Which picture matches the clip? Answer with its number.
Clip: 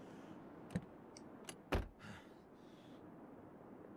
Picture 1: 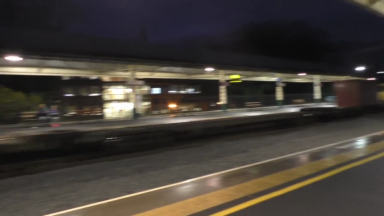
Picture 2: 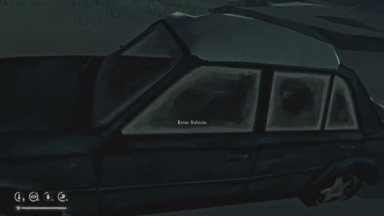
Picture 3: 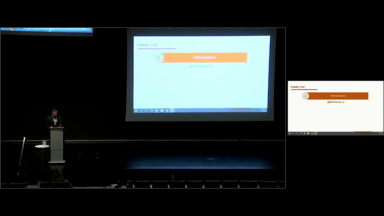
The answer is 2